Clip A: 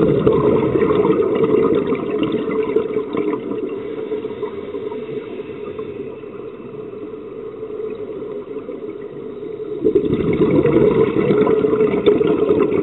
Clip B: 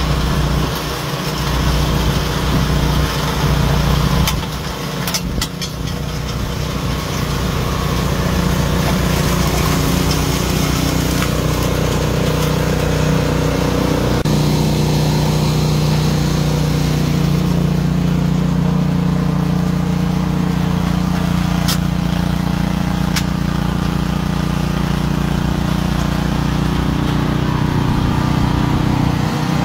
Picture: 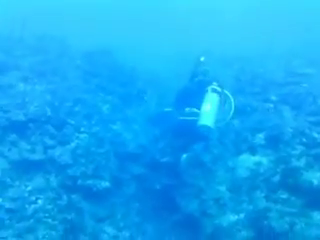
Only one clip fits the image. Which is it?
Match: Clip A